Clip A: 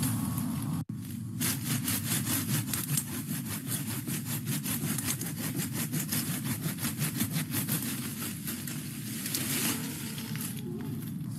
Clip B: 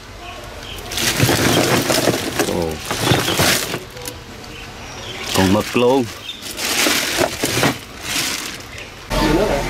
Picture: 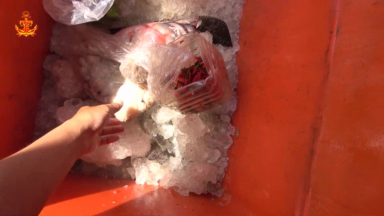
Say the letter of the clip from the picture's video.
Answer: B